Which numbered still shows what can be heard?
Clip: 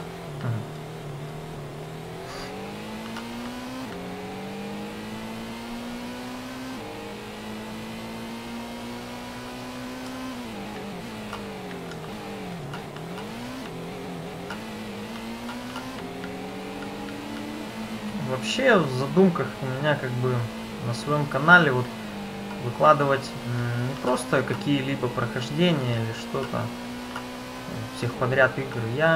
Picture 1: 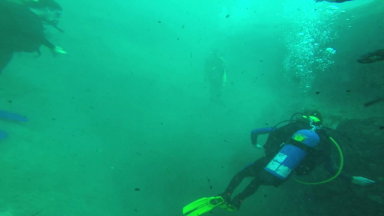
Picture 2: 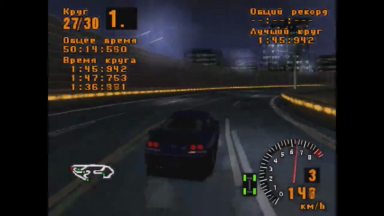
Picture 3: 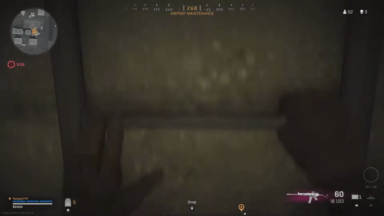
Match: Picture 2